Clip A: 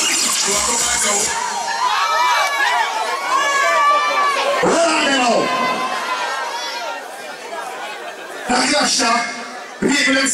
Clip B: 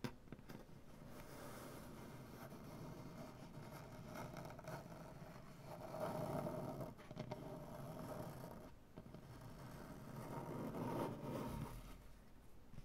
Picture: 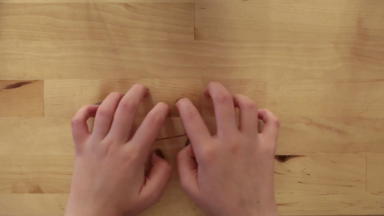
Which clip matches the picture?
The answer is B